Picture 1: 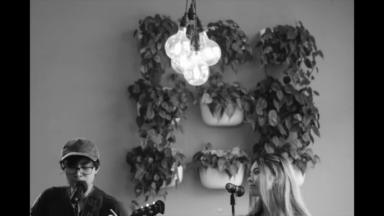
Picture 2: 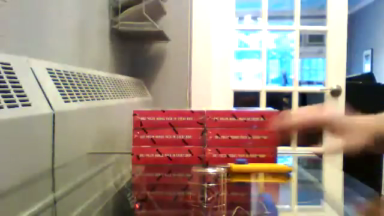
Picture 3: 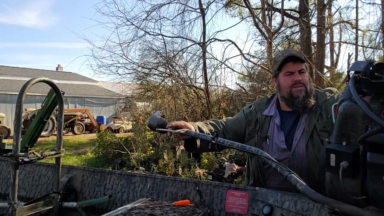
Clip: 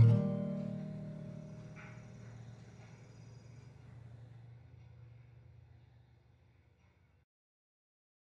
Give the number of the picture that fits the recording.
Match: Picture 1